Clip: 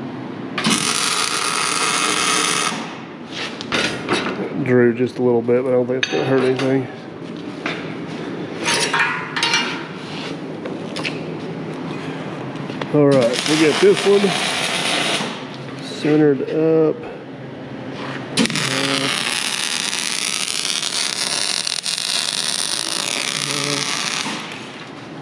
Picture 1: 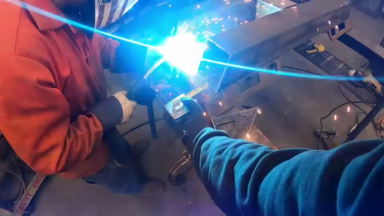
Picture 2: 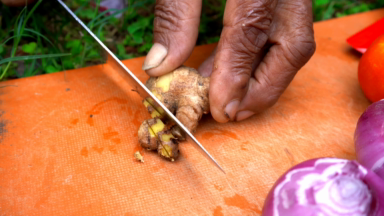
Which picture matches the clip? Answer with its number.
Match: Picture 1